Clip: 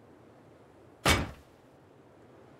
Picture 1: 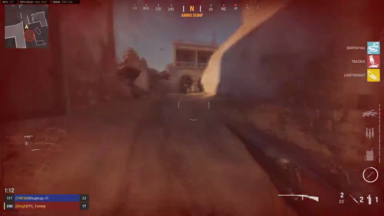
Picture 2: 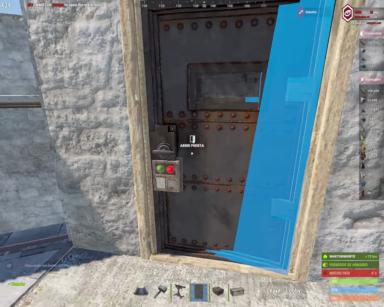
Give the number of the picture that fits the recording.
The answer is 2